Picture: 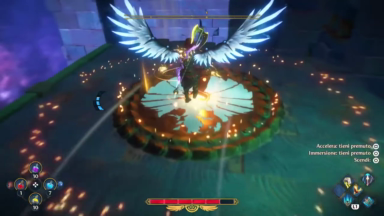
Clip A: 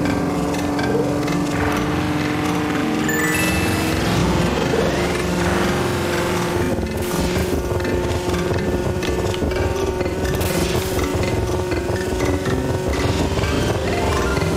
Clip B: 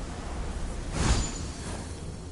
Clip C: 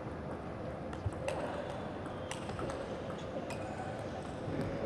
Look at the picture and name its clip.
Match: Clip B